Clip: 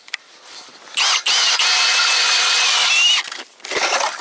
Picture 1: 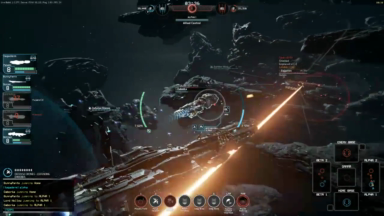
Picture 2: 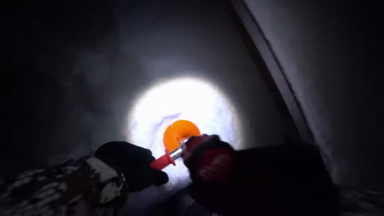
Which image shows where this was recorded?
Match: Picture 2